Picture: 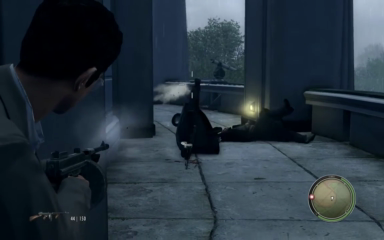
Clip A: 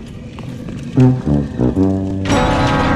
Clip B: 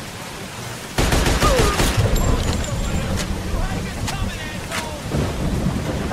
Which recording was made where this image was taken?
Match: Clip B